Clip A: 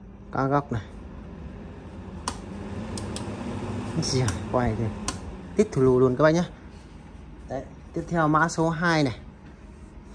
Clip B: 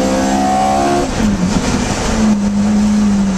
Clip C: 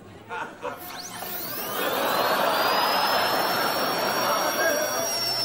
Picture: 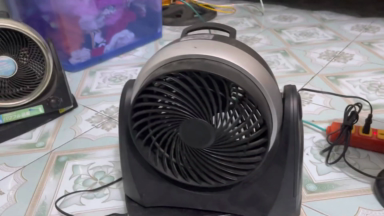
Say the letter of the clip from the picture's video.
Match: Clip A